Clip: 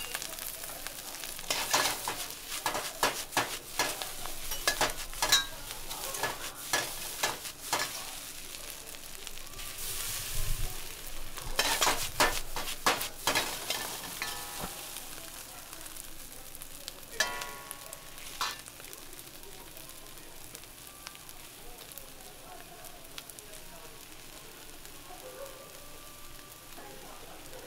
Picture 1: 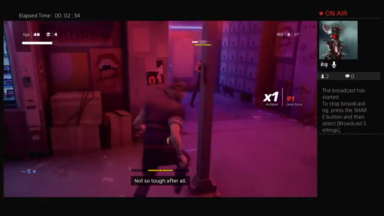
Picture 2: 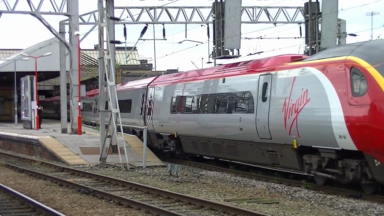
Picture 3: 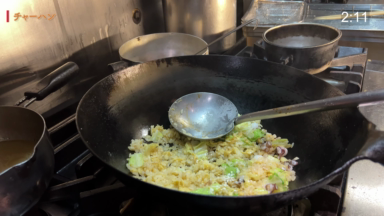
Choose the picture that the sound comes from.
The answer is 3